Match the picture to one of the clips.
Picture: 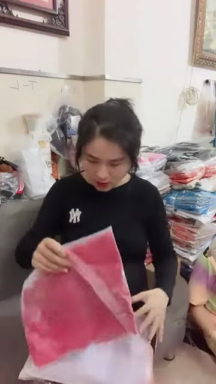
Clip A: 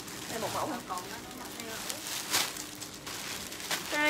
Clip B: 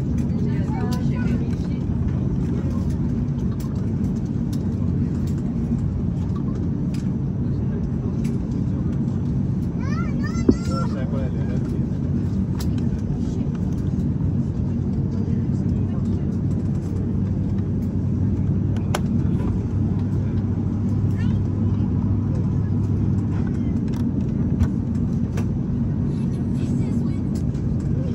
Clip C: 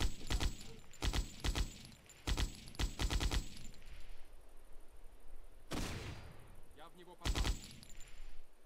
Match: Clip A